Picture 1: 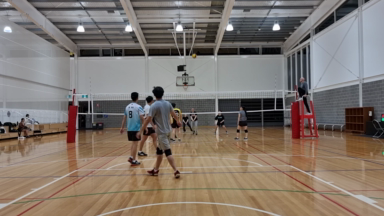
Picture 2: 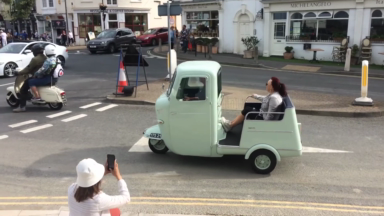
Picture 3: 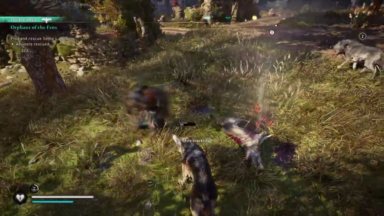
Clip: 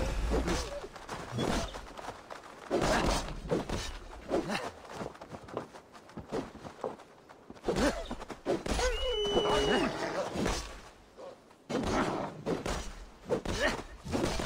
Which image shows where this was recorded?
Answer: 3